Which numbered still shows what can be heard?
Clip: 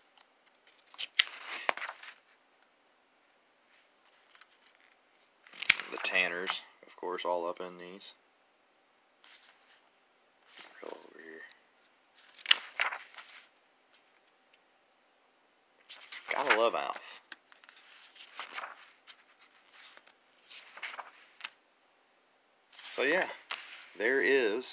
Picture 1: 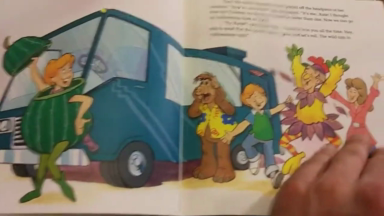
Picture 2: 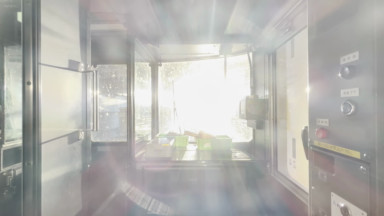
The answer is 1